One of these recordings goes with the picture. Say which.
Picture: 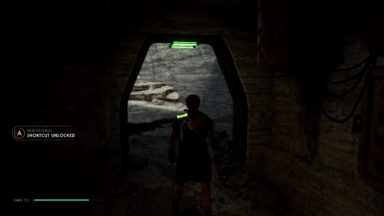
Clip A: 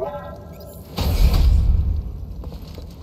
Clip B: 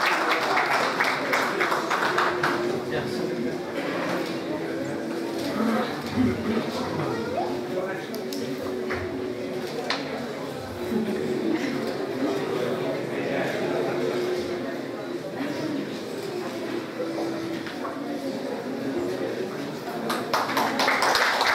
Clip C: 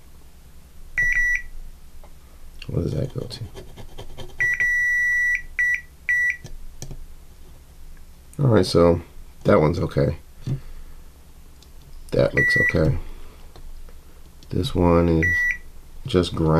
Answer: A